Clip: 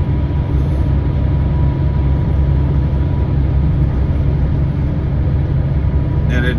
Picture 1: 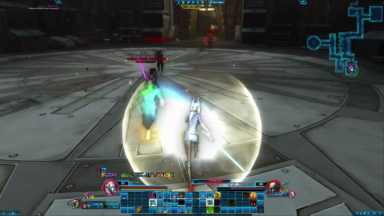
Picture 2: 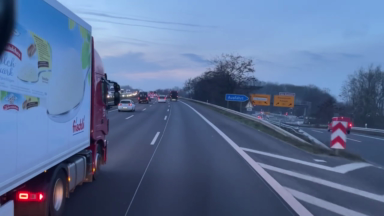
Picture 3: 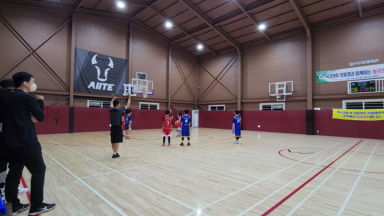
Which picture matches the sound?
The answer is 2